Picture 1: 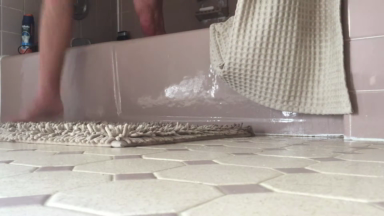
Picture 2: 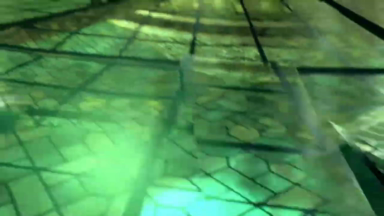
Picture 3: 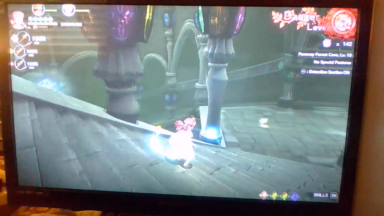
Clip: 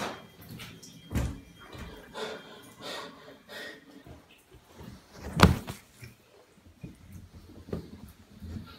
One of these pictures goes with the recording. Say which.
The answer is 1